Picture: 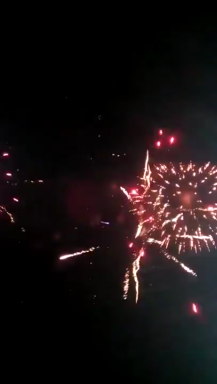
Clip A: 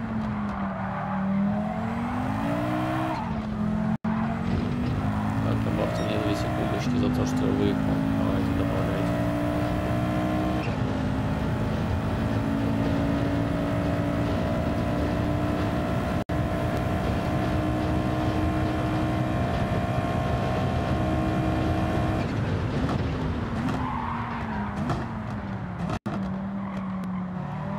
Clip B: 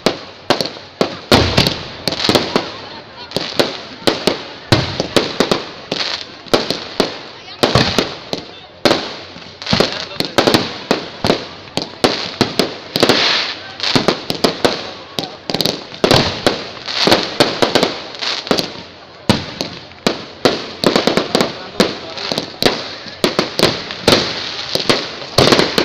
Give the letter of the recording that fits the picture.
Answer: B